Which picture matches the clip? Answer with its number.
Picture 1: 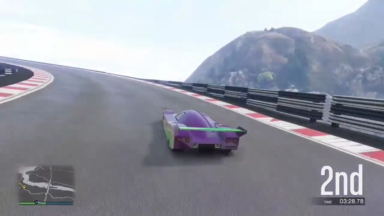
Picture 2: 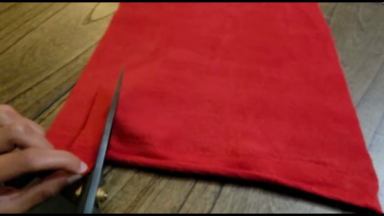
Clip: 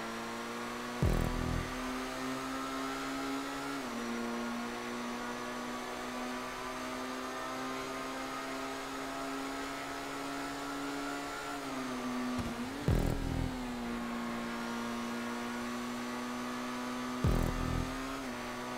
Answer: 1